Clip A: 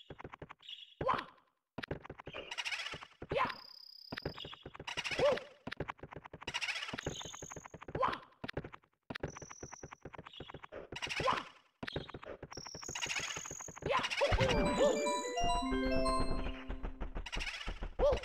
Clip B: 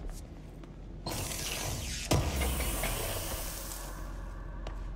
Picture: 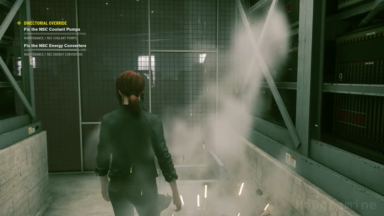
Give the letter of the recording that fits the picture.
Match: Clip B